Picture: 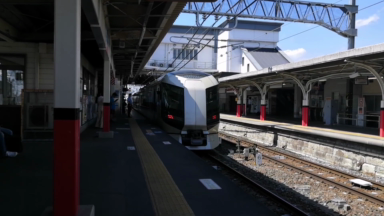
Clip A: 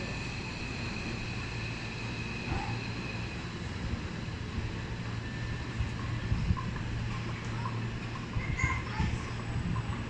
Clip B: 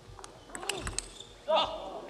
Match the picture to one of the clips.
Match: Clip A